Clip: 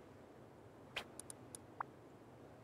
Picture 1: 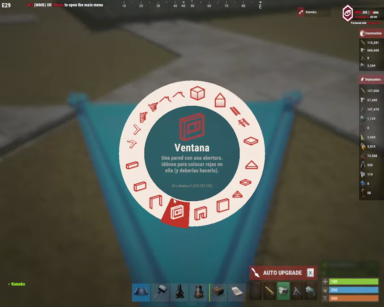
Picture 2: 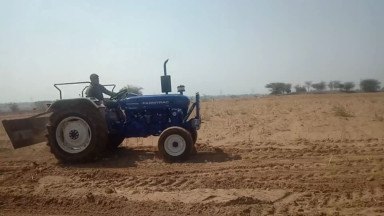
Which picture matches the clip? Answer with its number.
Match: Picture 1